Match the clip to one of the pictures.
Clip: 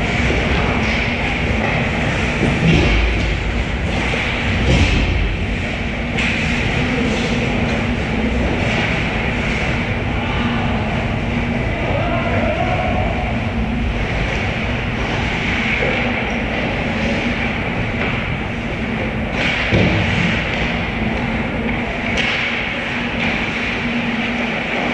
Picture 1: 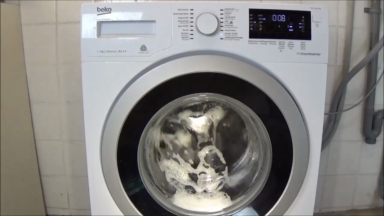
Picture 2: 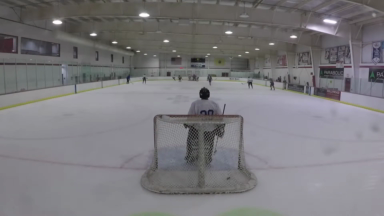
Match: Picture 2